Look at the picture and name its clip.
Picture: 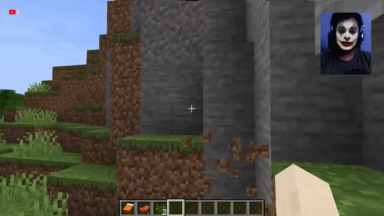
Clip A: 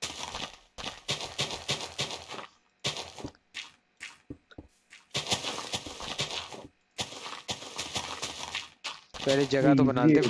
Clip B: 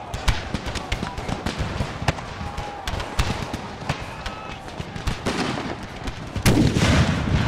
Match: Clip A